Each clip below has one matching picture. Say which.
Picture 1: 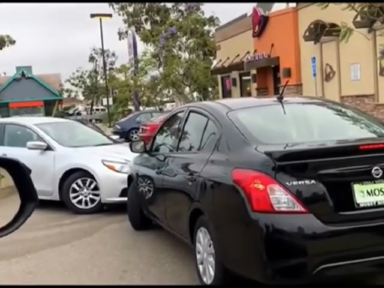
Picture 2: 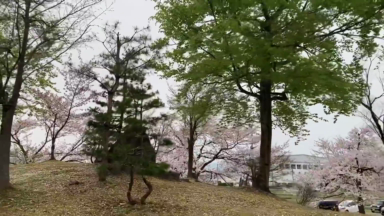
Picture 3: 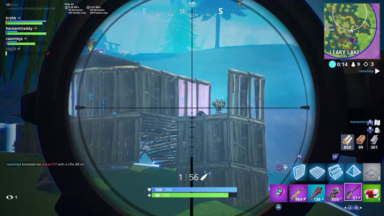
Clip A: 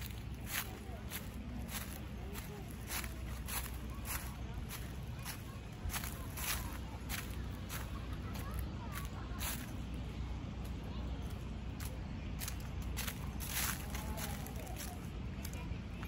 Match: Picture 2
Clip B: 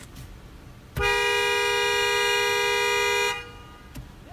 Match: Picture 1